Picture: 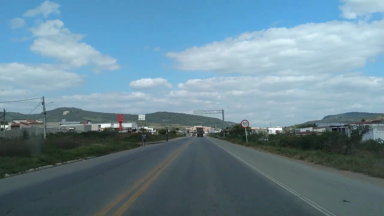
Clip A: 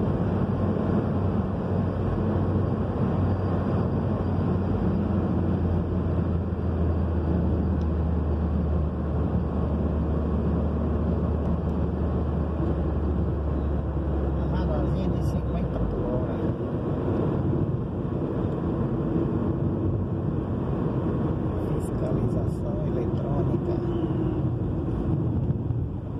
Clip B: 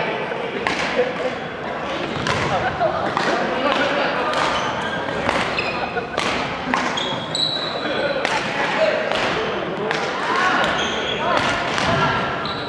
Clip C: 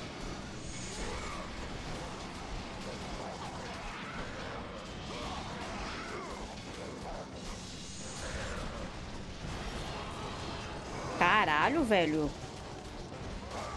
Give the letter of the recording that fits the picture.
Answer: A